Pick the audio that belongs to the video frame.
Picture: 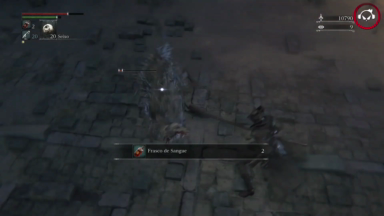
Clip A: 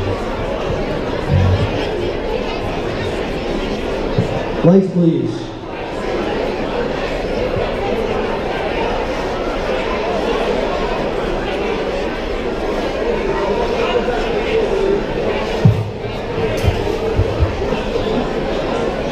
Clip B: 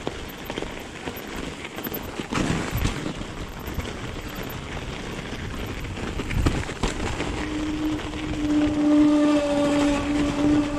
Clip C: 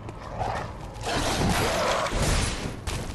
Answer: C